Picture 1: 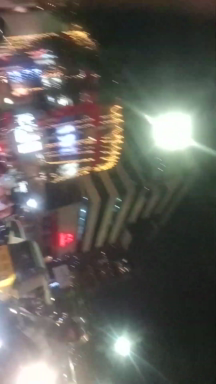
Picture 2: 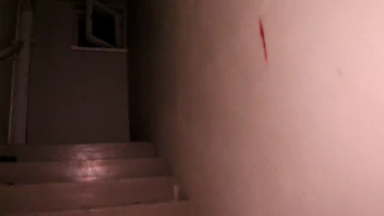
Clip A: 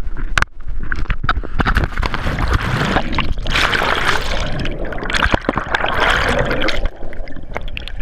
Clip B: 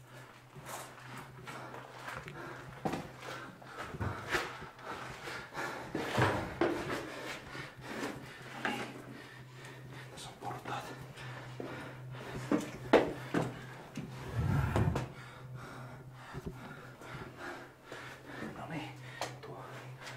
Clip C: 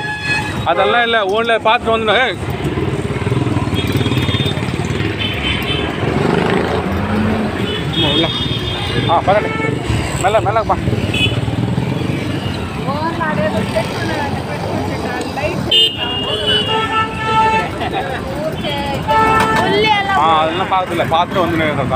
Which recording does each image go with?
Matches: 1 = C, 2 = B